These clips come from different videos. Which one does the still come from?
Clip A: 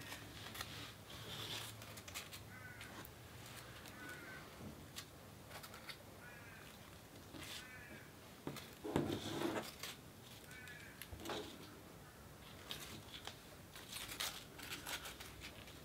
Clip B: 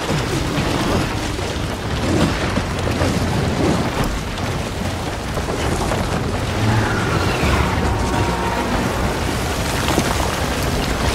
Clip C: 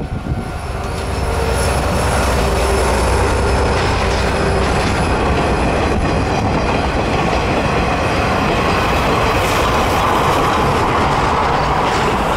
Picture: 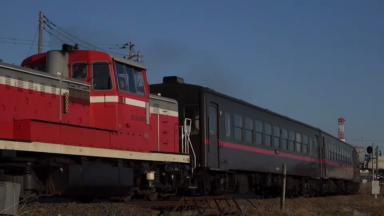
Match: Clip C